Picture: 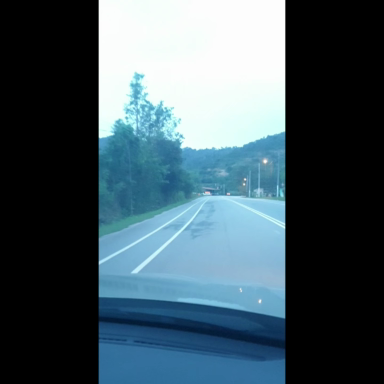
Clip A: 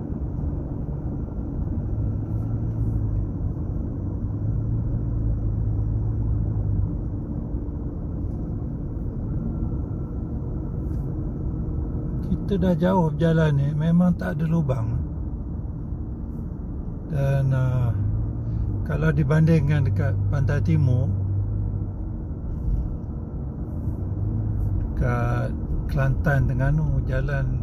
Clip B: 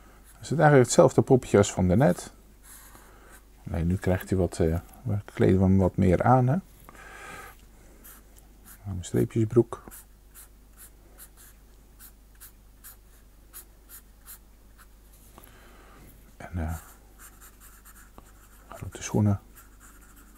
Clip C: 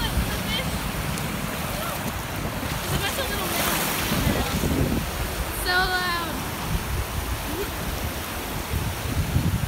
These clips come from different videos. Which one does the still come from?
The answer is A